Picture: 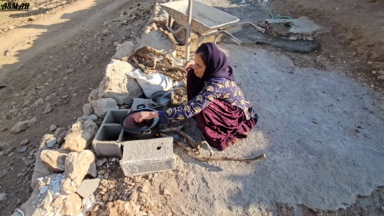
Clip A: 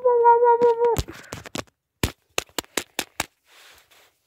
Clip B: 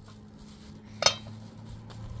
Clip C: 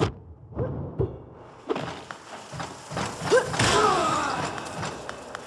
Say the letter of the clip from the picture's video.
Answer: B